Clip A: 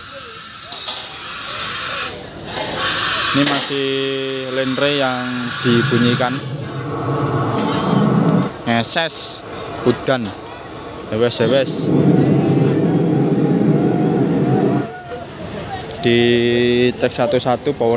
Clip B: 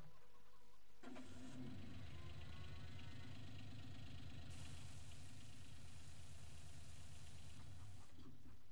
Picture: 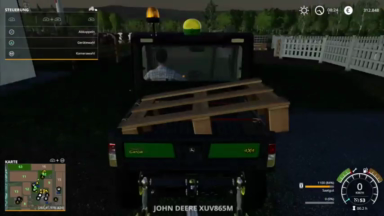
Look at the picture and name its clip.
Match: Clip B